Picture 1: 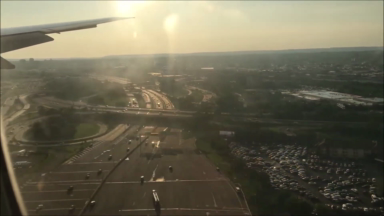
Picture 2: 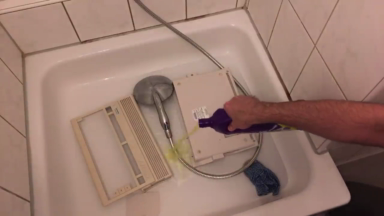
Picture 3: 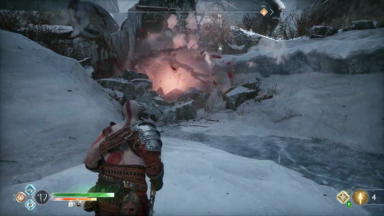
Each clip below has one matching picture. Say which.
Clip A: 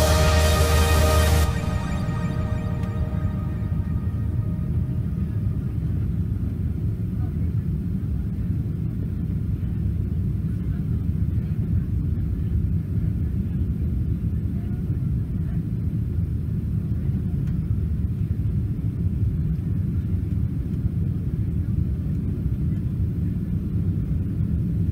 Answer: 1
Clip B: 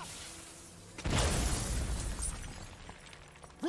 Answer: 3